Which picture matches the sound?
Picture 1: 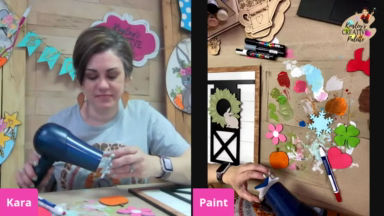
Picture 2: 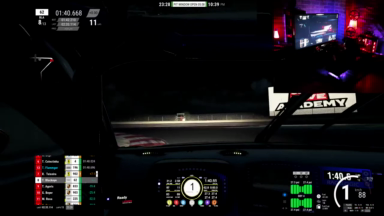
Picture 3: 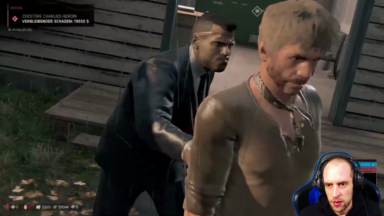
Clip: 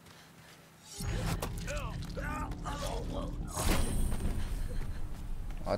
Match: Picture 3